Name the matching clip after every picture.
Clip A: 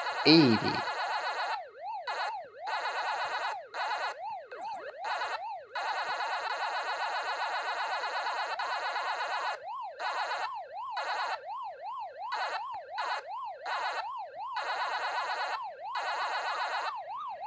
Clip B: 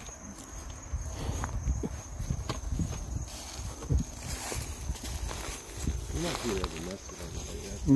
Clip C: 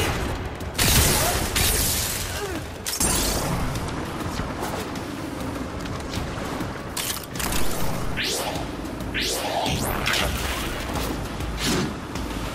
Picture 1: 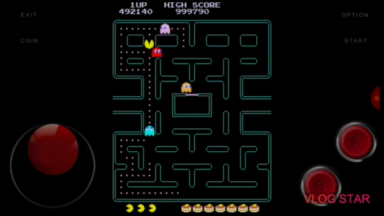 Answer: A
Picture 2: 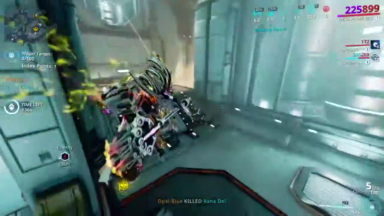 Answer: C